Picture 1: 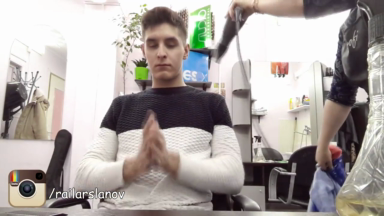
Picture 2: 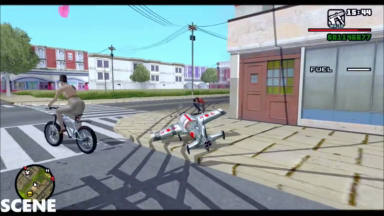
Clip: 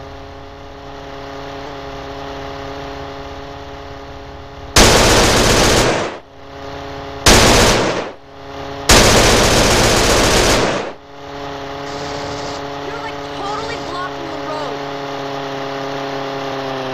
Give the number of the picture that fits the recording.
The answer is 2